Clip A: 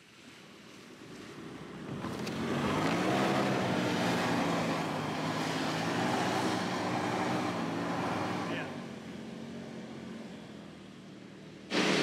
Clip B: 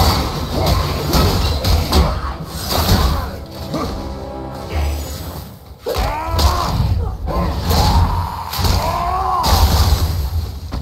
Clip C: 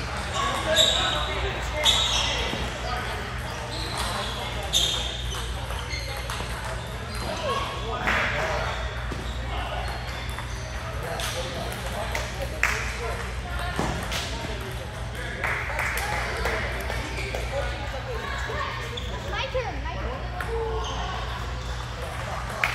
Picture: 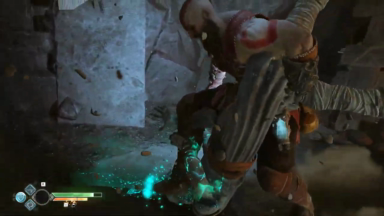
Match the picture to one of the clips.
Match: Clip B